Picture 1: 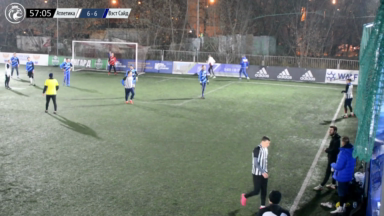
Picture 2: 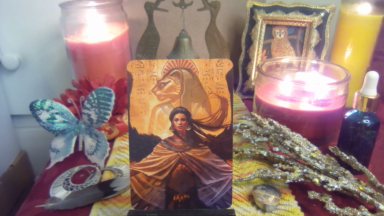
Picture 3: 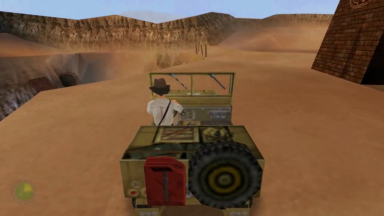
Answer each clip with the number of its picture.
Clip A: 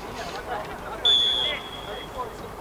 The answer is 1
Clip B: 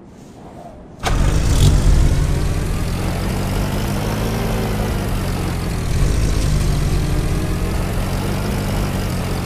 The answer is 3